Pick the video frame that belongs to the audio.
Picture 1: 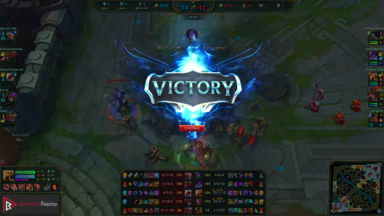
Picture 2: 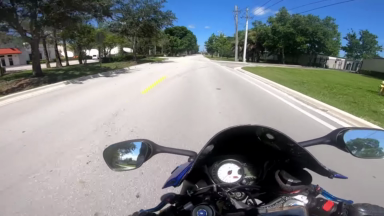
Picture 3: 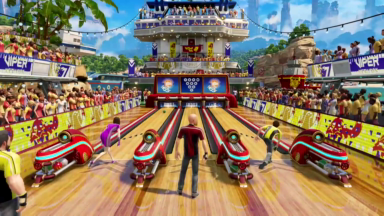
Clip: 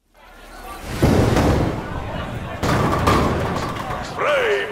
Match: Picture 3